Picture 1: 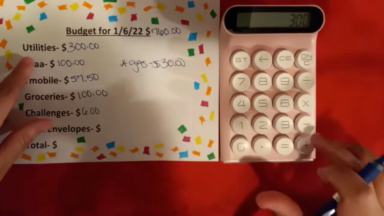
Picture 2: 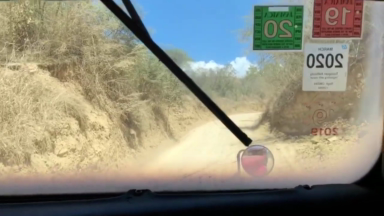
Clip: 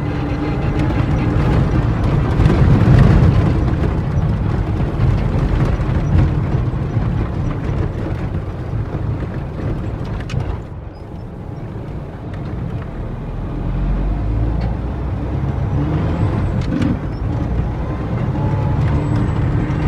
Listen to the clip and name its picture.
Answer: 2